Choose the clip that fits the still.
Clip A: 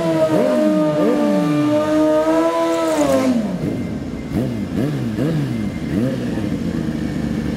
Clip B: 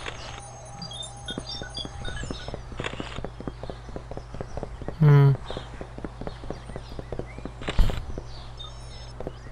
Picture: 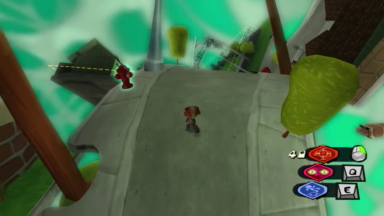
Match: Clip B